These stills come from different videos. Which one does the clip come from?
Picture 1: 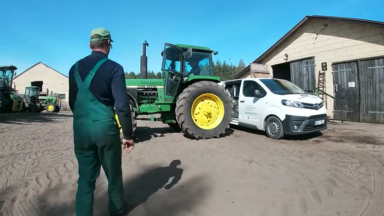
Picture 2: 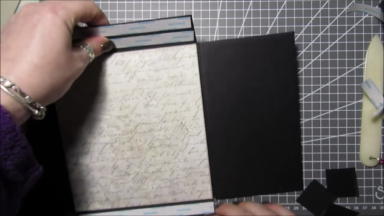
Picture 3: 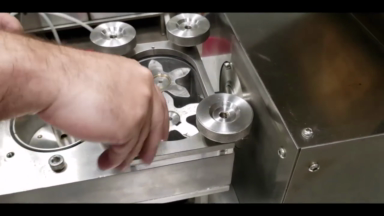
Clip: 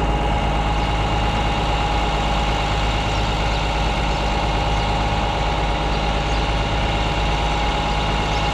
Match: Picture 1